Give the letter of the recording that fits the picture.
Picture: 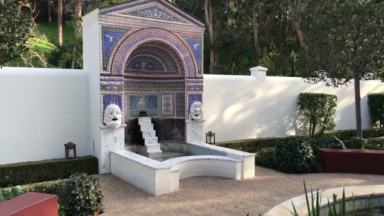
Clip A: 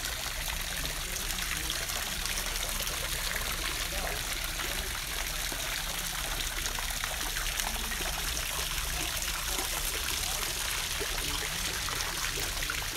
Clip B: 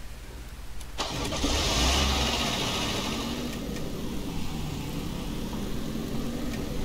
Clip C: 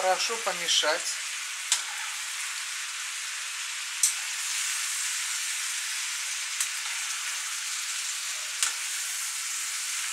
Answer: A